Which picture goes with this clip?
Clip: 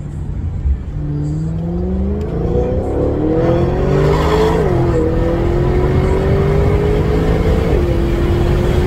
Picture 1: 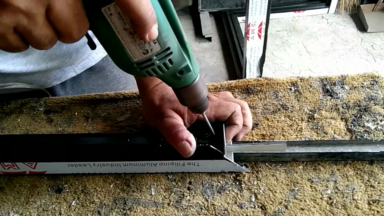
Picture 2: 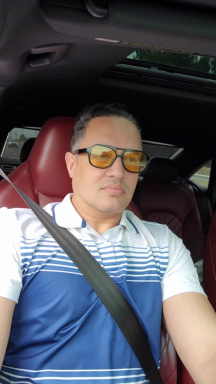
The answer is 2